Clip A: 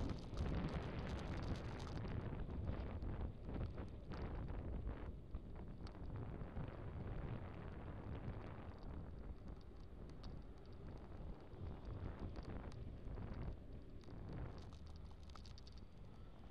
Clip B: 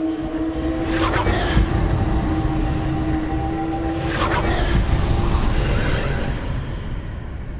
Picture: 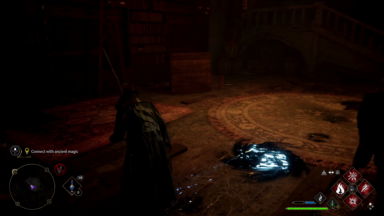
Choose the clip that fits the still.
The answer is B